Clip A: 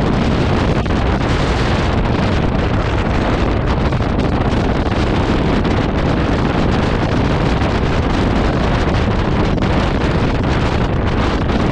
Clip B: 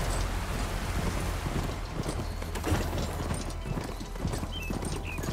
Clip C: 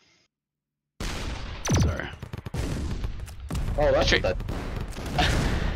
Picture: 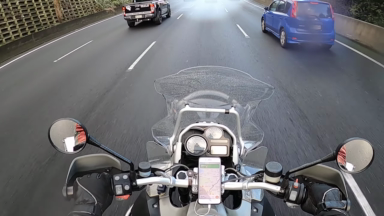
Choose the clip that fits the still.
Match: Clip A